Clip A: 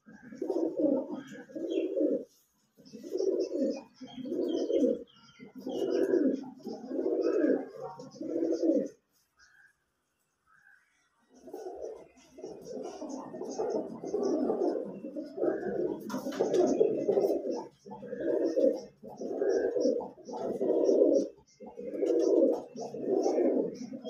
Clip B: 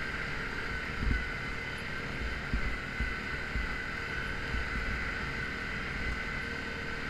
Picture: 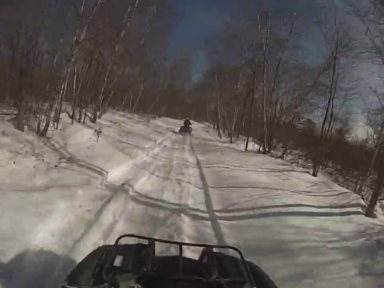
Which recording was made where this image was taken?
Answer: B